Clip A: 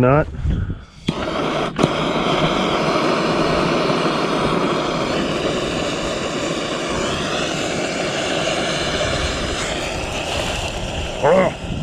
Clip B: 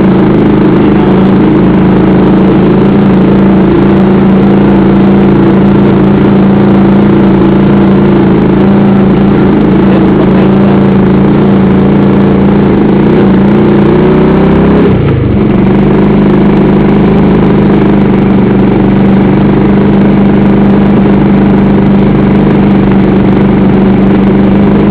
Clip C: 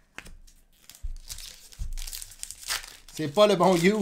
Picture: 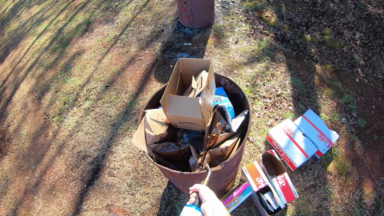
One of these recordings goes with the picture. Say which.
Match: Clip A